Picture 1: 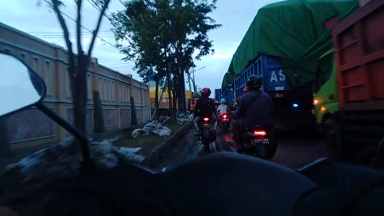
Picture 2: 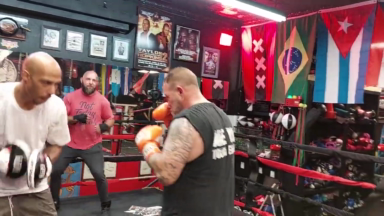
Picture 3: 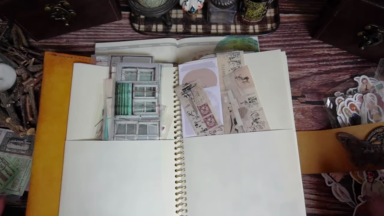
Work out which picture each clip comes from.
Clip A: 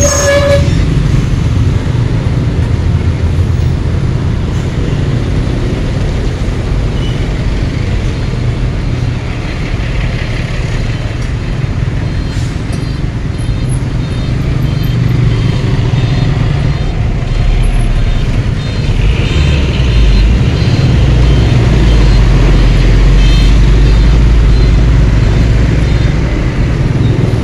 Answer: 1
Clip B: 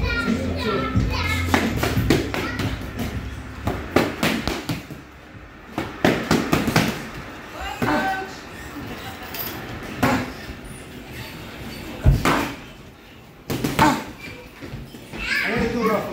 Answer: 2